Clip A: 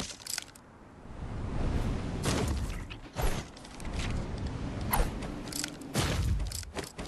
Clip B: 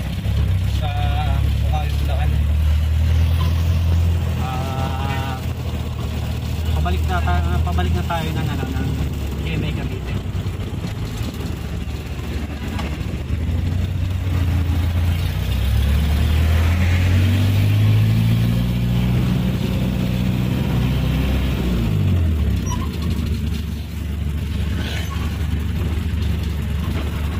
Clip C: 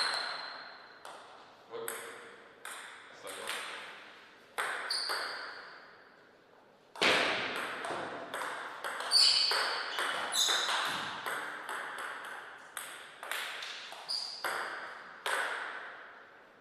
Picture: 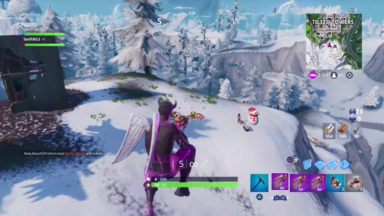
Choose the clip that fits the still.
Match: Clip A